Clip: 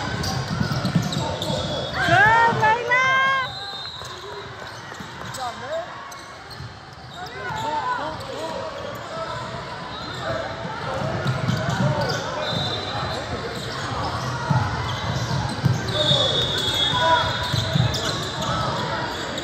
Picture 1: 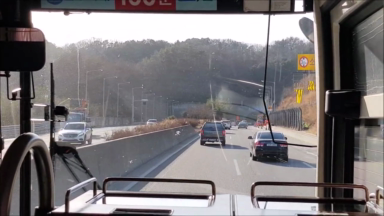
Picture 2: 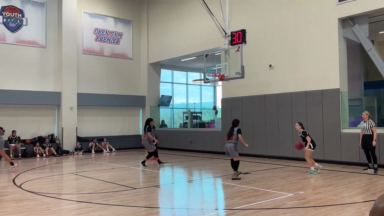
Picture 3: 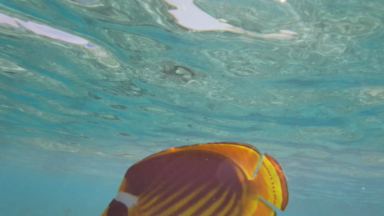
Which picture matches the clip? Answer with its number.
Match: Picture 2